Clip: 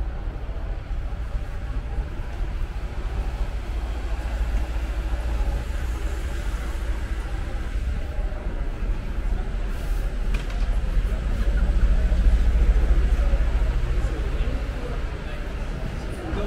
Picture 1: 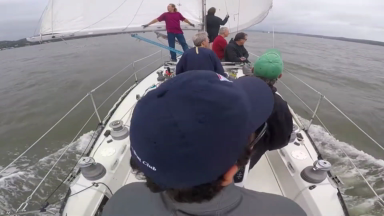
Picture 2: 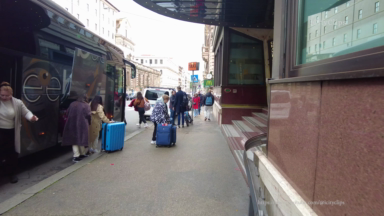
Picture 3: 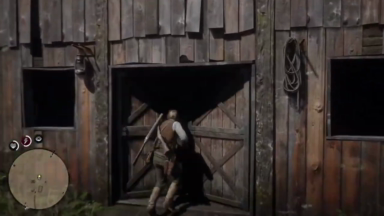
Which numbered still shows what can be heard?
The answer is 2